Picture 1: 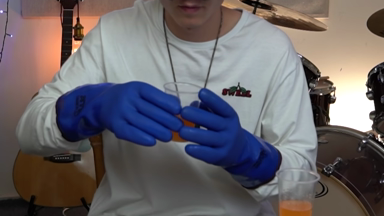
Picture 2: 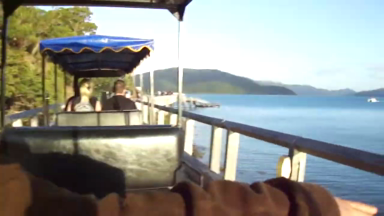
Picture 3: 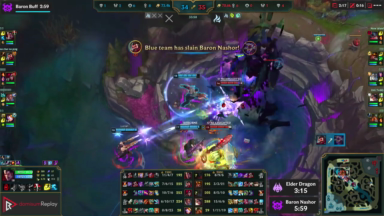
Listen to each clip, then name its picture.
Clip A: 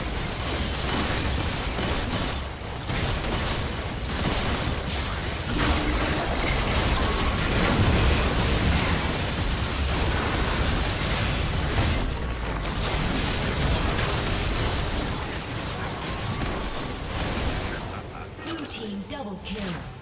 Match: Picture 3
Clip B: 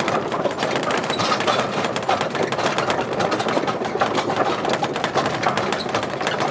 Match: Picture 2